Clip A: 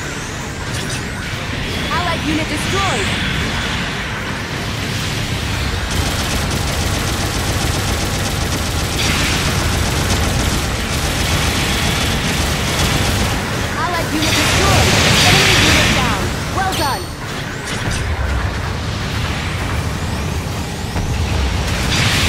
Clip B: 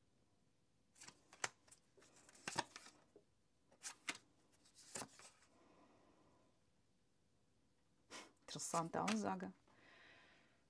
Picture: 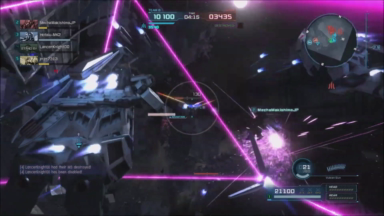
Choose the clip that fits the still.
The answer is A